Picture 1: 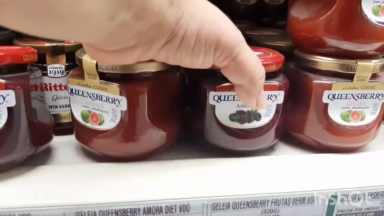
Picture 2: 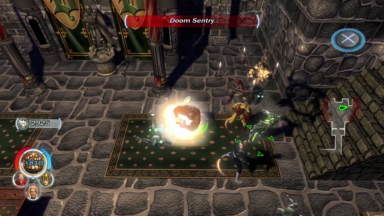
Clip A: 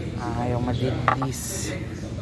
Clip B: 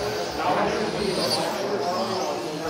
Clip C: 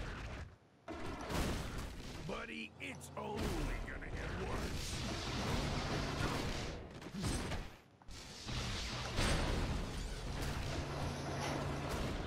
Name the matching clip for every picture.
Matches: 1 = A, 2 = C